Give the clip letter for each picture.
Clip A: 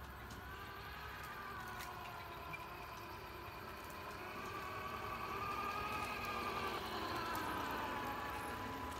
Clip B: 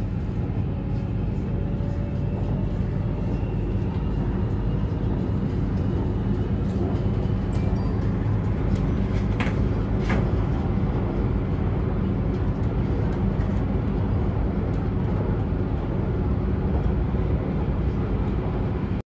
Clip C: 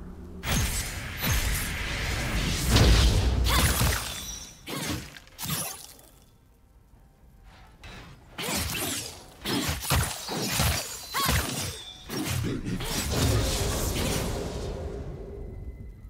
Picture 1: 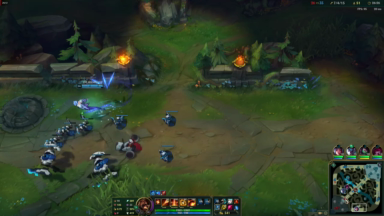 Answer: C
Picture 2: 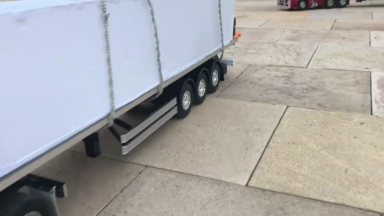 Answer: A